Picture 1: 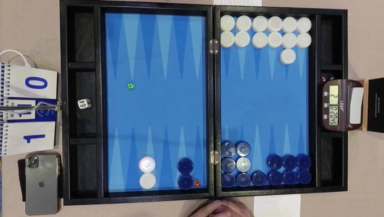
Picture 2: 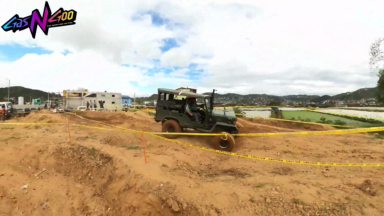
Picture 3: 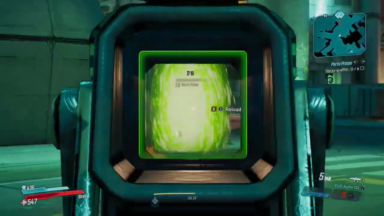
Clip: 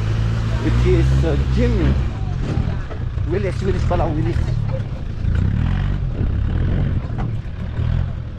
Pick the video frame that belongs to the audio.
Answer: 2